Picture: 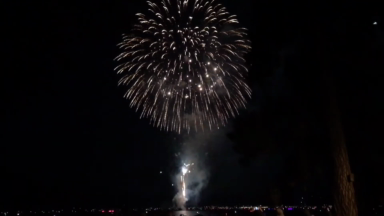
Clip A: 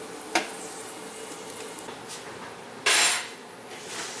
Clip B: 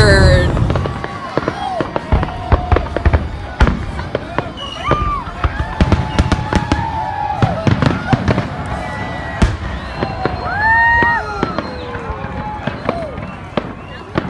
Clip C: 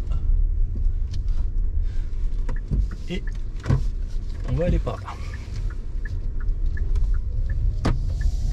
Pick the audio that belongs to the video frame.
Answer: B